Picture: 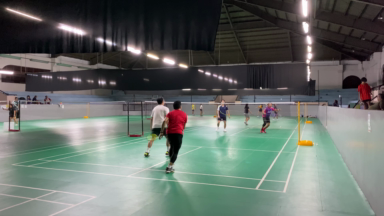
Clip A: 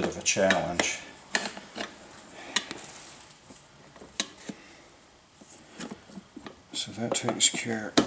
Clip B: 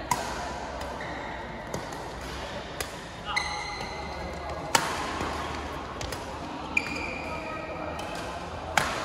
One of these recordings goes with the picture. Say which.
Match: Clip B